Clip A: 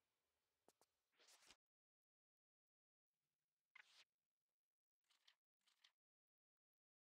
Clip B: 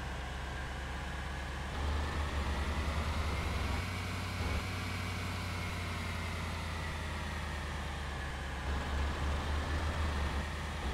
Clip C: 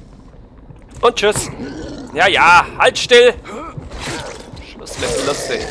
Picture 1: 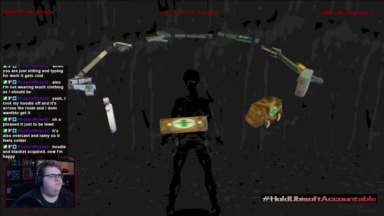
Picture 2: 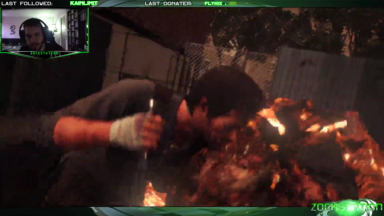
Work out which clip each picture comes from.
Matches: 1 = A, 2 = C